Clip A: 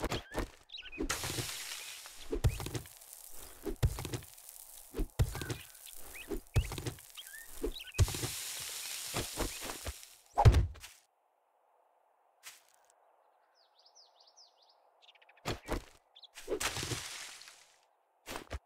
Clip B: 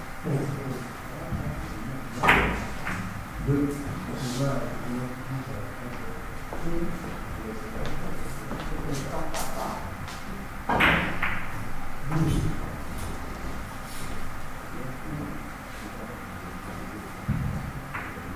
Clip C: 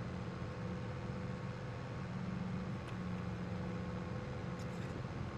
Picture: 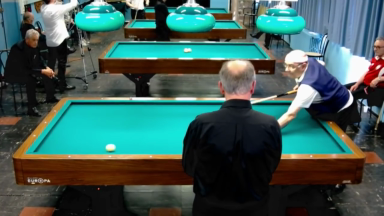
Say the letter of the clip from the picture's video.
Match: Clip B